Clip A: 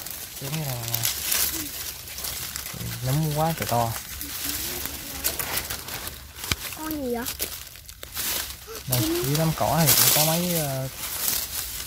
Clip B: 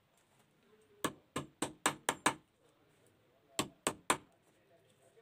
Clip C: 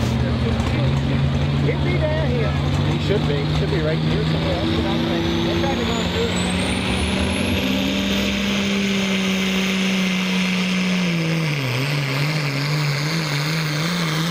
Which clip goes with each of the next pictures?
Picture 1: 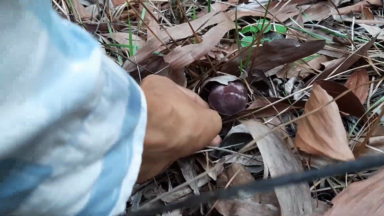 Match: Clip A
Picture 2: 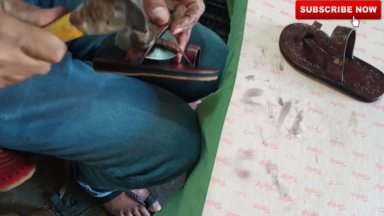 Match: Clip B